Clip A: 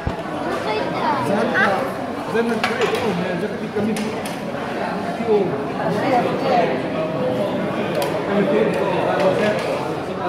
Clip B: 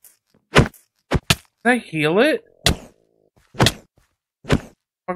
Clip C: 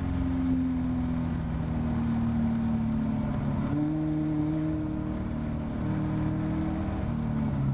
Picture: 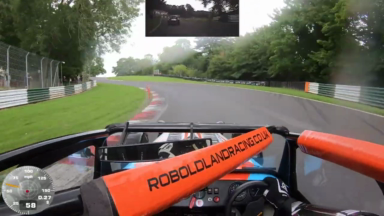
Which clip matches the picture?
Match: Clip C